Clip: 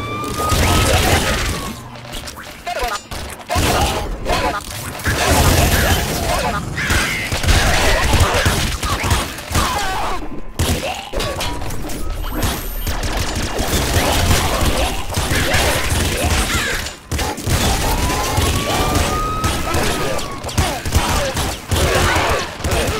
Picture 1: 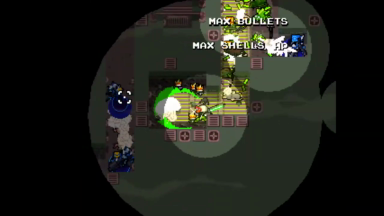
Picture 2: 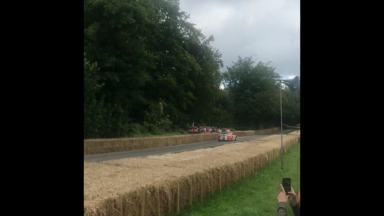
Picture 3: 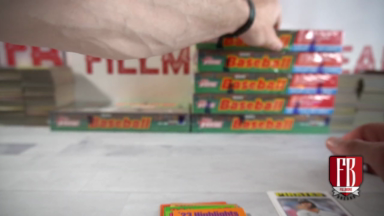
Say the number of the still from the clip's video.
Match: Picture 1